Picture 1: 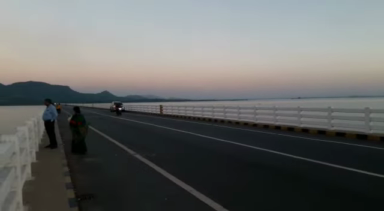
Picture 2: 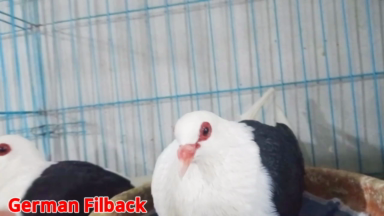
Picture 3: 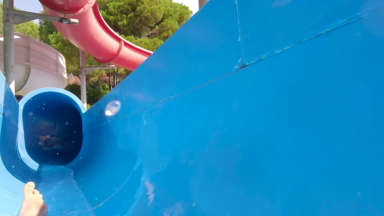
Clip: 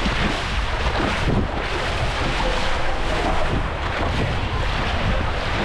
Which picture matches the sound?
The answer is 3